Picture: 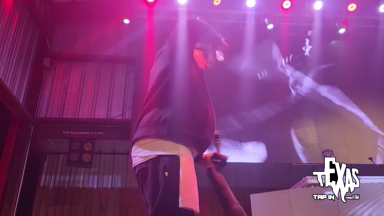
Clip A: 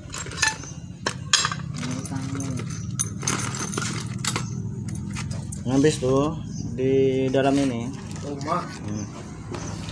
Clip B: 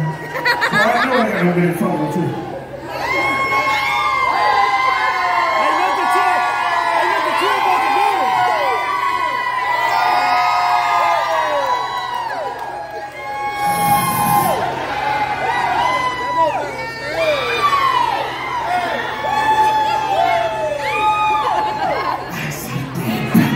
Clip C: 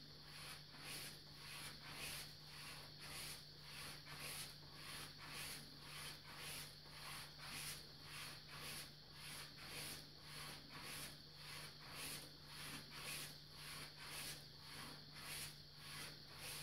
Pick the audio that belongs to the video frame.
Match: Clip B